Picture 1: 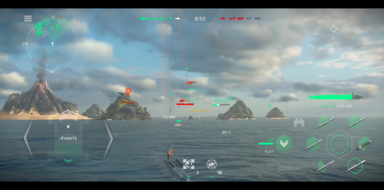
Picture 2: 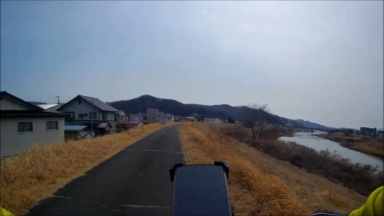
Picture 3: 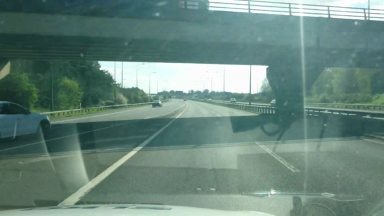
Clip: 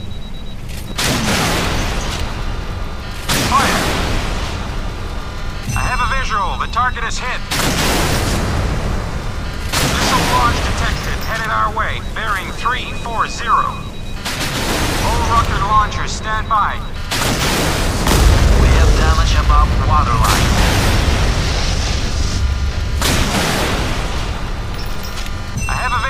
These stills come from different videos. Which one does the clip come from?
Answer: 1